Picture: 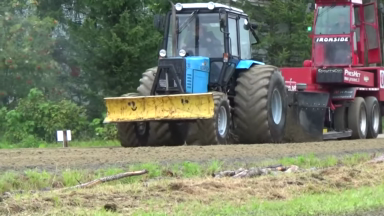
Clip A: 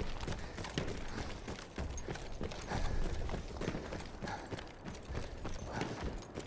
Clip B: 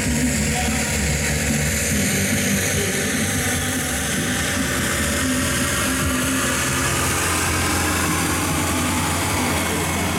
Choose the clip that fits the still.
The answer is B